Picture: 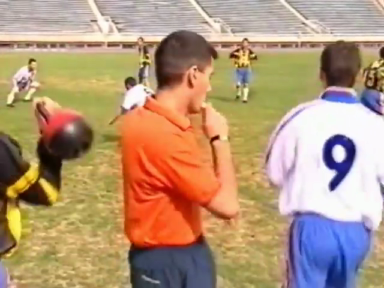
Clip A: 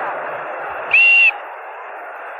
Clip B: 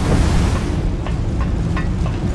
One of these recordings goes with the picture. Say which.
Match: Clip A